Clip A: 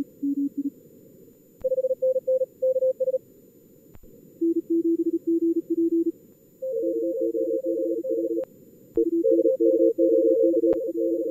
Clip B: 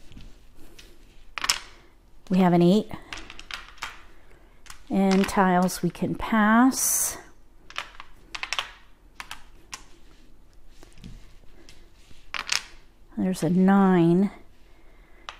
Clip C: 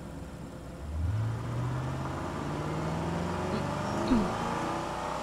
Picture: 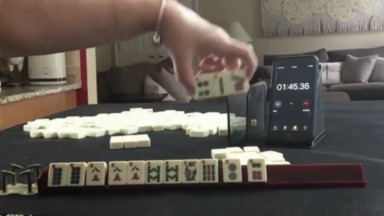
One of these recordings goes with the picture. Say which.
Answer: B